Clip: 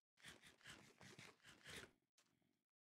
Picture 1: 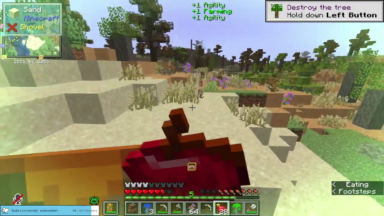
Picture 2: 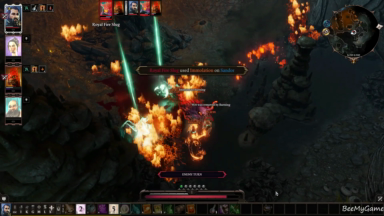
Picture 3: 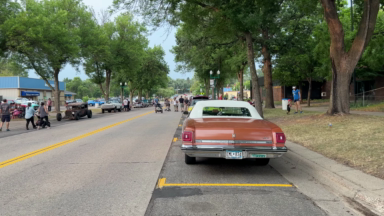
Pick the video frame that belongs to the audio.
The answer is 1